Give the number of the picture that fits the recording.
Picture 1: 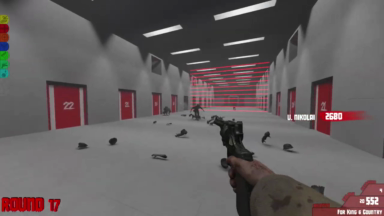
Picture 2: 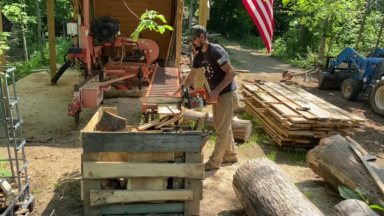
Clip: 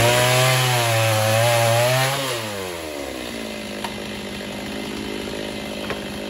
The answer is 2